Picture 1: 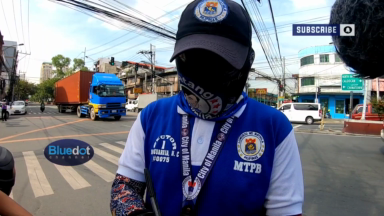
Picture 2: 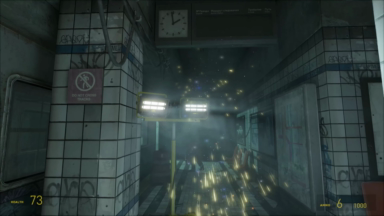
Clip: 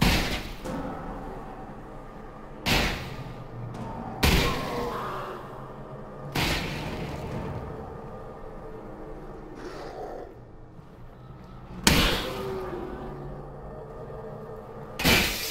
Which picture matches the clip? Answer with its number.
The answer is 2